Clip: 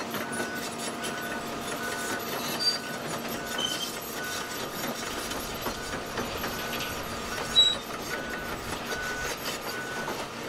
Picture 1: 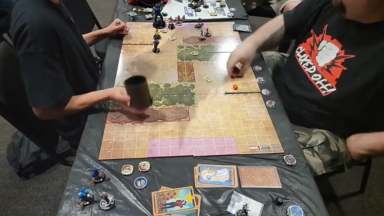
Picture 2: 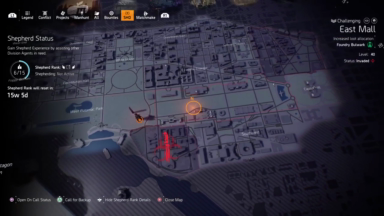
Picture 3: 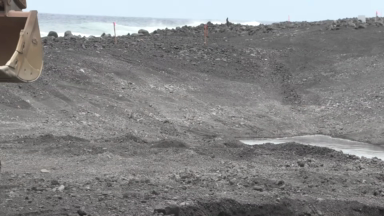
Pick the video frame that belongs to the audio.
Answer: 3